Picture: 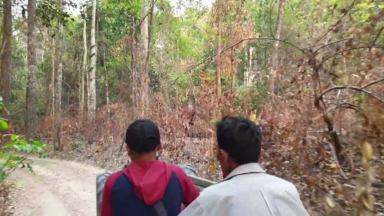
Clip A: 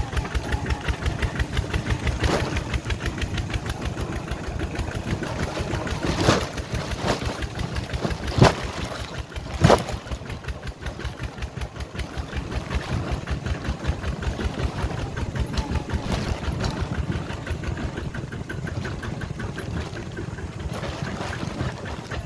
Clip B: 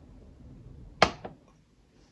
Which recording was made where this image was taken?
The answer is A